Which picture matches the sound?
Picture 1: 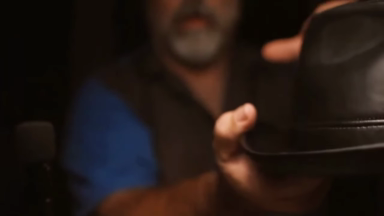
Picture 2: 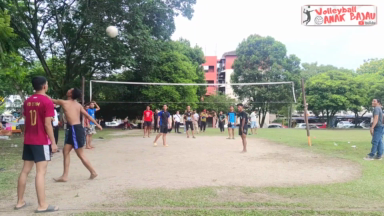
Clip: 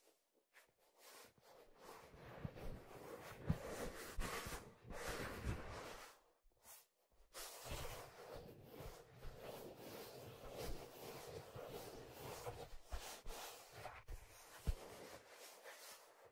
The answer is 1